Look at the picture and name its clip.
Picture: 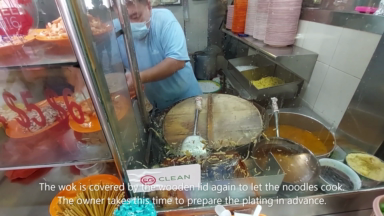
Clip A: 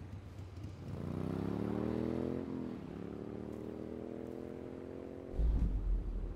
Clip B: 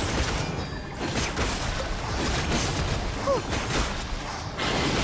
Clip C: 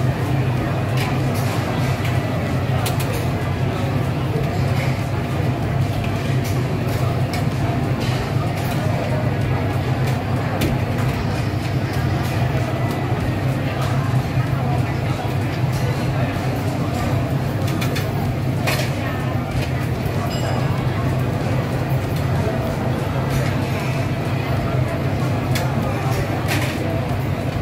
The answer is C